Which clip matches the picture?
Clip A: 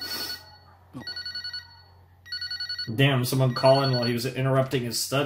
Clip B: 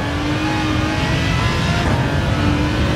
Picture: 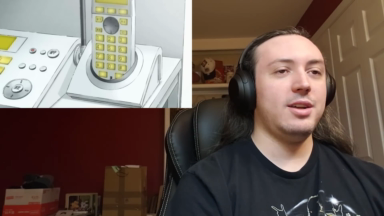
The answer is A